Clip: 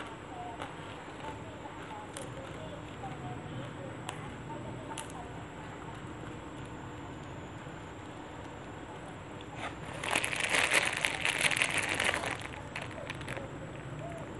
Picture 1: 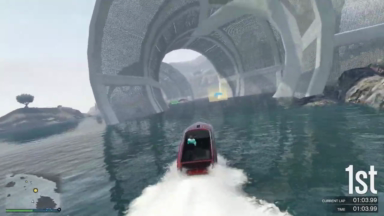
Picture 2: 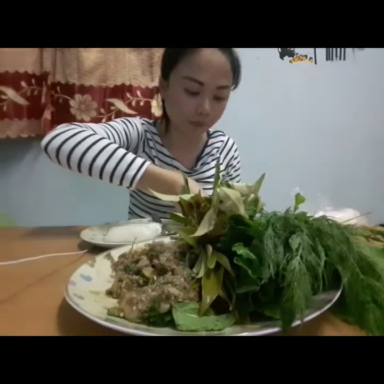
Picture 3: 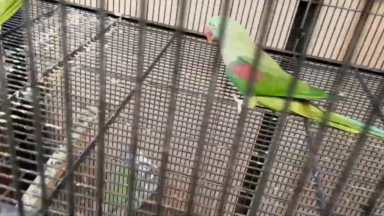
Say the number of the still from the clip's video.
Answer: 2